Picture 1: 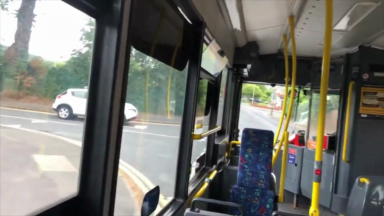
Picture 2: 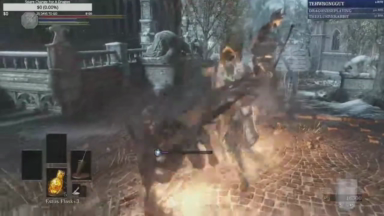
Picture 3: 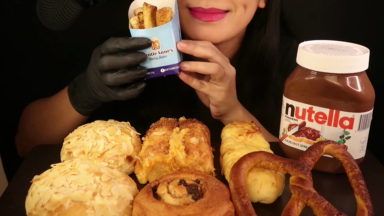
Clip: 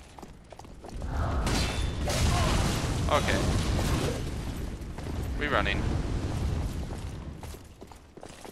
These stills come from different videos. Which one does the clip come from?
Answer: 2